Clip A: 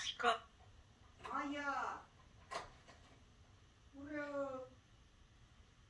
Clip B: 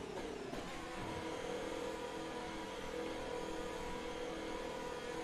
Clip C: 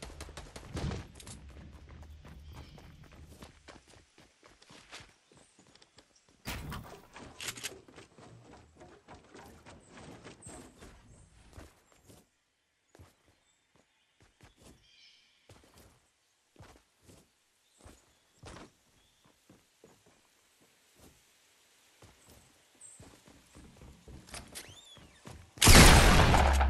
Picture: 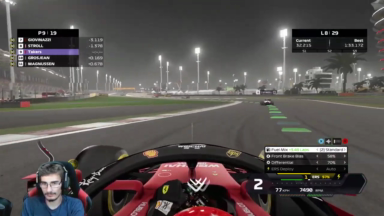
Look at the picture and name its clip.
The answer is B